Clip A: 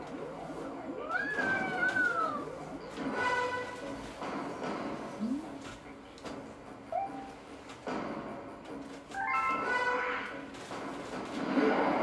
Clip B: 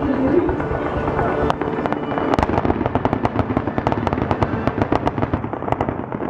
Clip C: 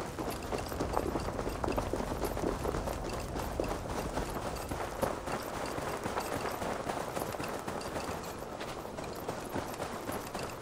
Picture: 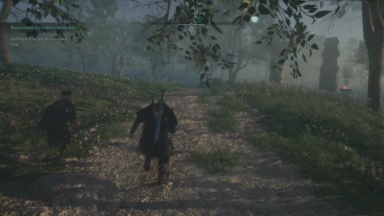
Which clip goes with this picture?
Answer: C